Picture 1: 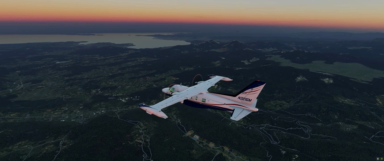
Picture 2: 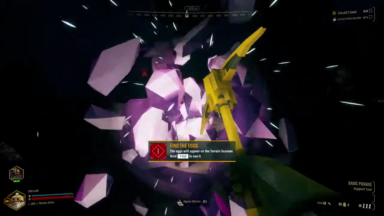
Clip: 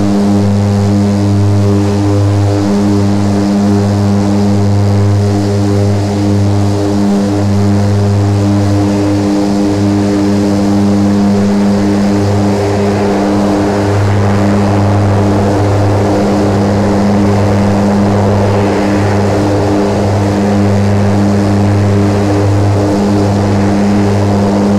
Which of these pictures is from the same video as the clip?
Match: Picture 1